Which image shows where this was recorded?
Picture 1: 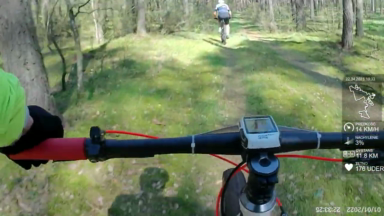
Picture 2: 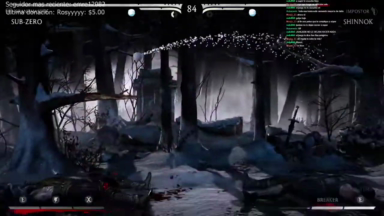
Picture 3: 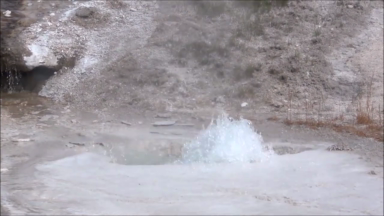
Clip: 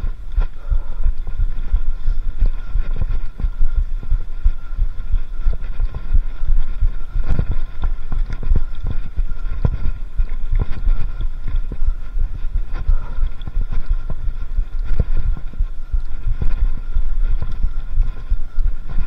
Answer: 1